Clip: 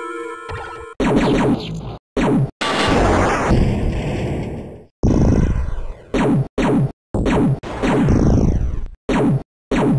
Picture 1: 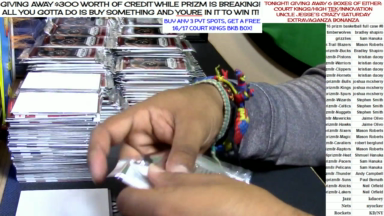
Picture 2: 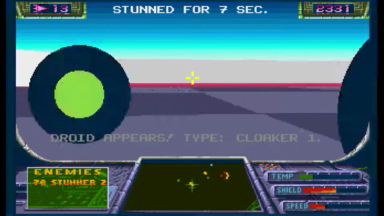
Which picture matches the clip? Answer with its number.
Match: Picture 2